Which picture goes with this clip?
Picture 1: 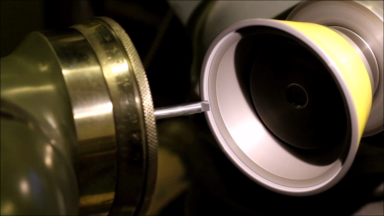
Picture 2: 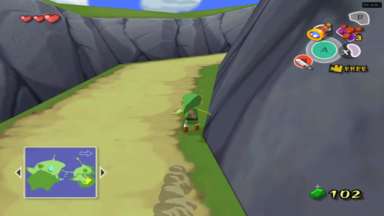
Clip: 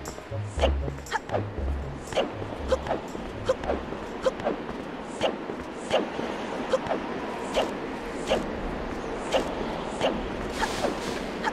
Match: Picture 2